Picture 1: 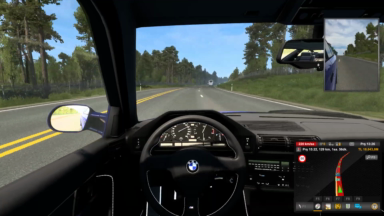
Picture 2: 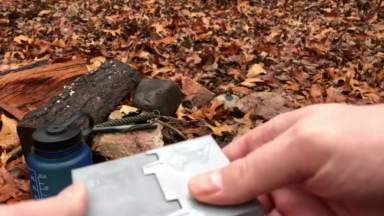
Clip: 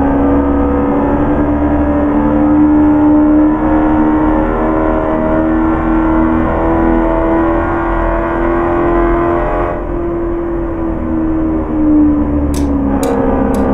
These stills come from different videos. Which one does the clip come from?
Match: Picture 1